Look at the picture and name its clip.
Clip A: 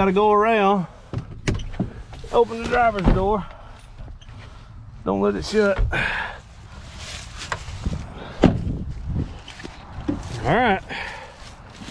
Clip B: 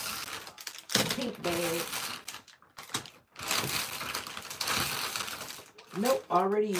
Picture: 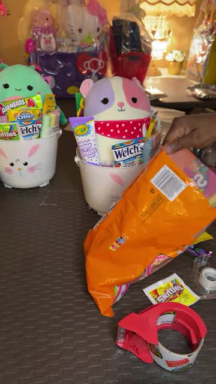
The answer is B